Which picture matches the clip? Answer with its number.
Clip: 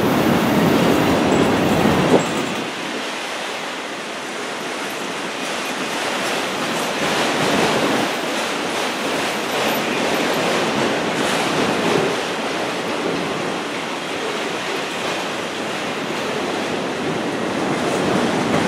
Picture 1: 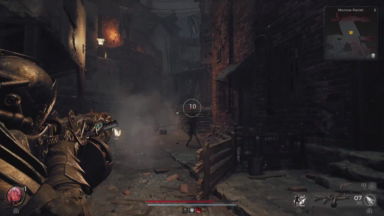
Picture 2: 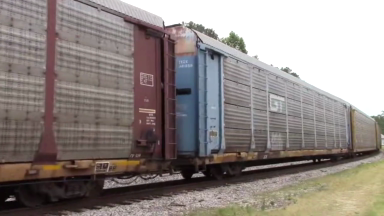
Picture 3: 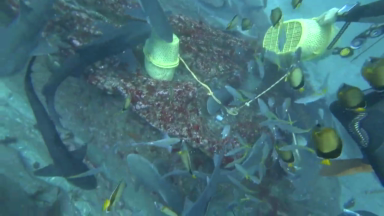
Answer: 2